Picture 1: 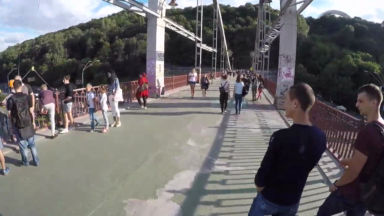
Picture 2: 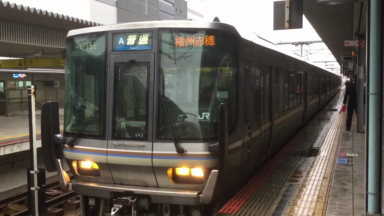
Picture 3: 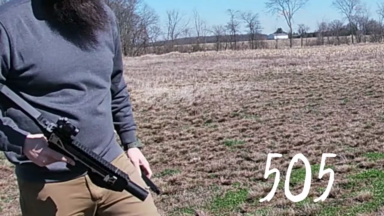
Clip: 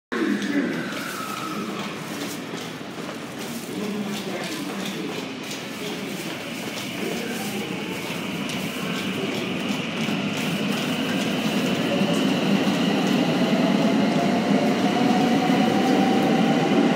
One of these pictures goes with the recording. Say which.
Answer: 2